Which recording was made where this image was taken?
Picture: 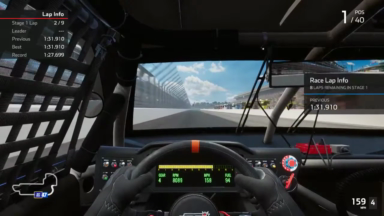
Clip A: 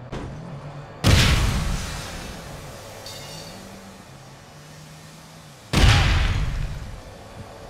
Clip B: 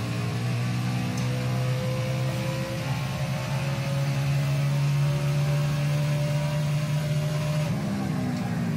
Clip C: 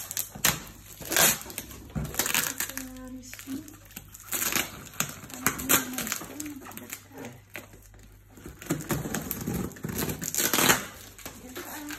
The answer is B